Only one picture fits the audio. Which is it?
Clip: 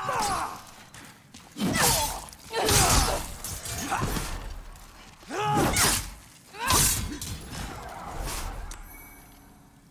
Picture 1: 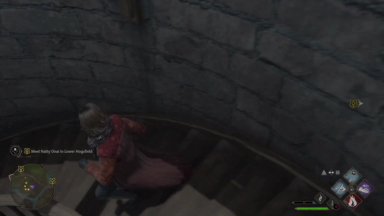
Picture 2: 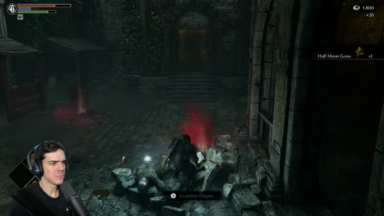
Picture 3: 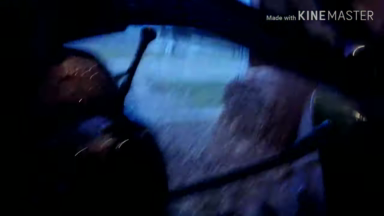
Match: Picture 2